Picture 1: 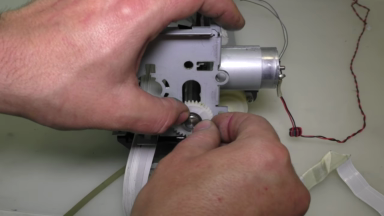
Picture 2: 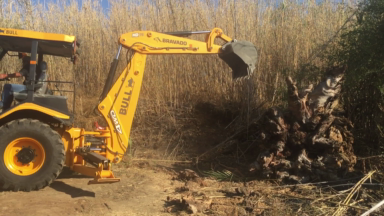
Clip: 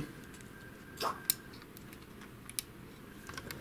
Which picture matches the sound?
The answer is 1